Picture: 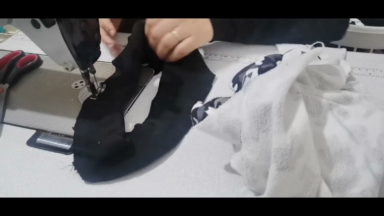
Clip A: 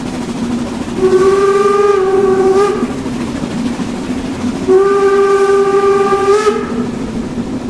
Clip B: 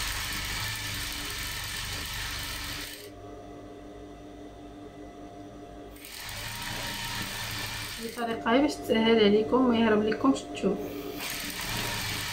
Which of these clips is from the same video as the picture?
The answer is B